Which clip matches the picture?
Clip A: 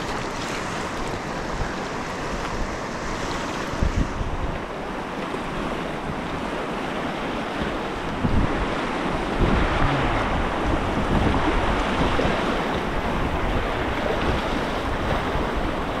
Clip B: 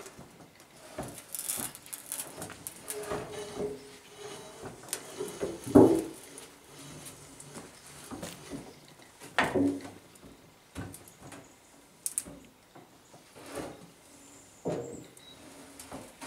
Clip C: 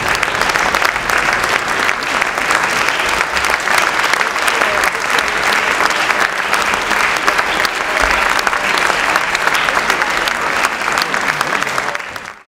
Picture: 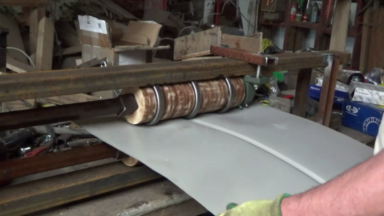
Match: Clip B